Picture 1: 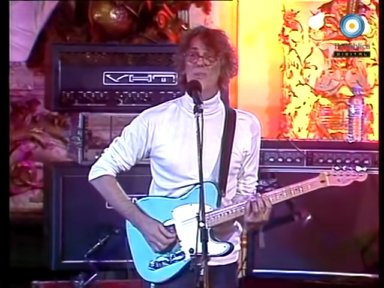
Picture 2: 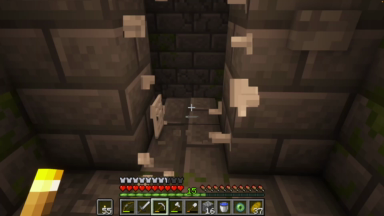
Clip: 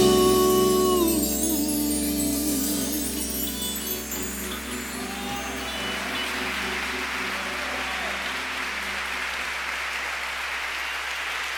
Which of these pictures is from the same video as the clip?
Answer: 1